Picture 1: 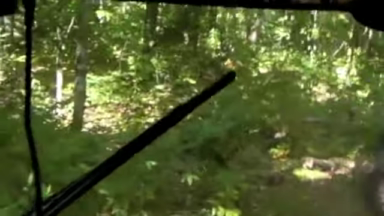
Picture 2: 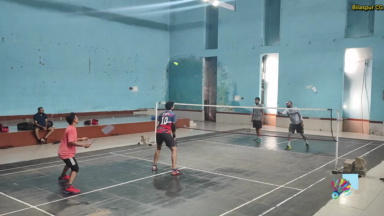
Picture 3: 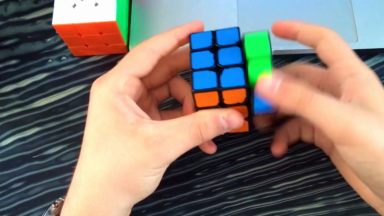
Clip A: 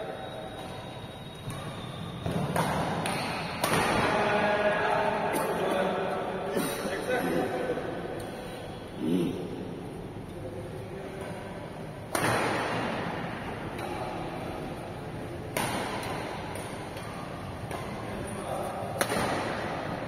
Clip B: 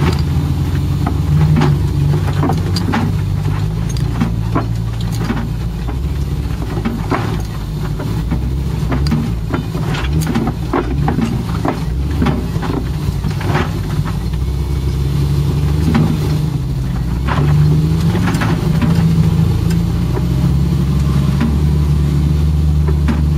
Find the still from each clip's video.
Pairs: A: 2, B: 1